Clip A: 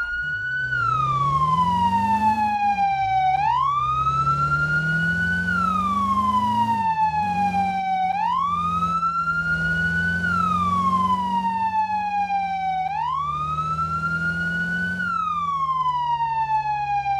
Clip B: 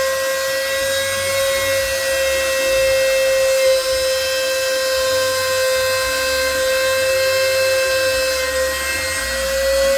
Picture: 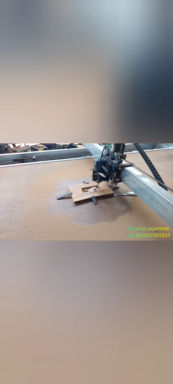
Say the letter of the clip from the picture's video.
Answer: B